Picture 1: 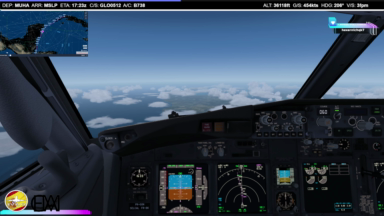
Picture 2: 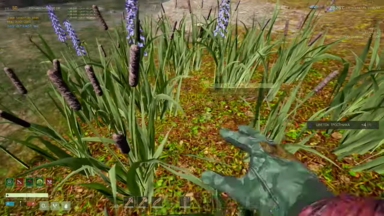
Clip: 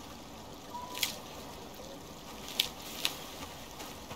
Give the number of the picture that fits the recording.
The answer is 2